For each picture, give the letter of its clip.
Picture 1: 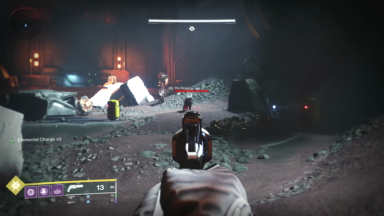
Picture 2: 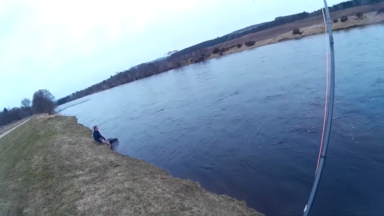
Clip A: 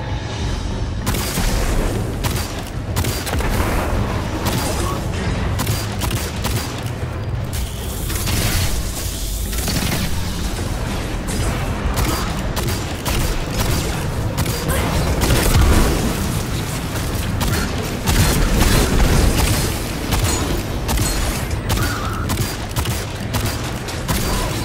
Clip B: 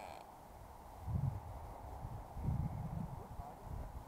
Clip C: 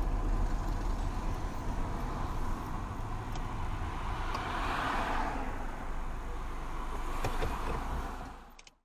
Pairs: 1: A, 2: B